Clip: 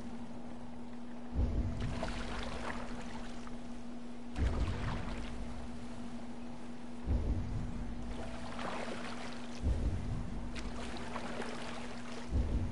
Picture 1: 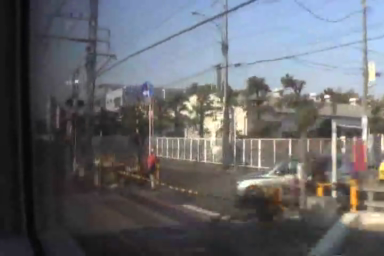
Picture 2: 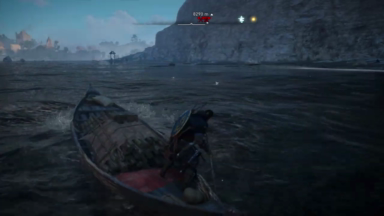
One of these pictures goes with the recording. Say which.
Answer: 2